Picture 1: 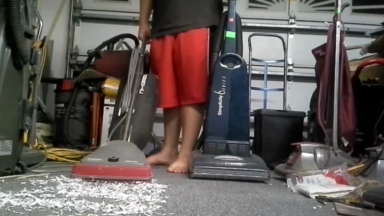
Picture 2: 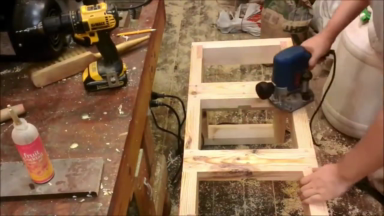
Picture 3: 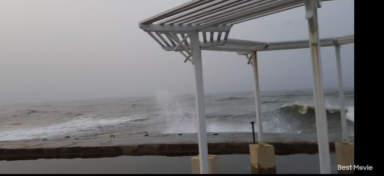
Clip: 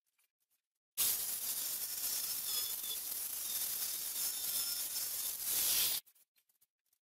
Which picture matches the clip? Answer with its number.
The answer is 2